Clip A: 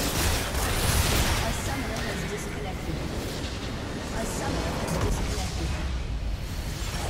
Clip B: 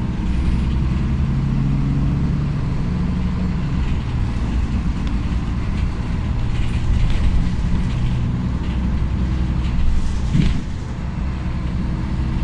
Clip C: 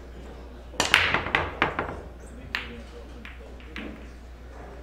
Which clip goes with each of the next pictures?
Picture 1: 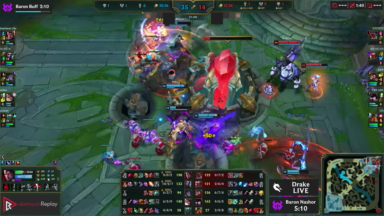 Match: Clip A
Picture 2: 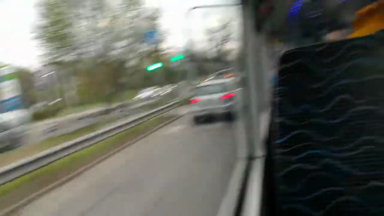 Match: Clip B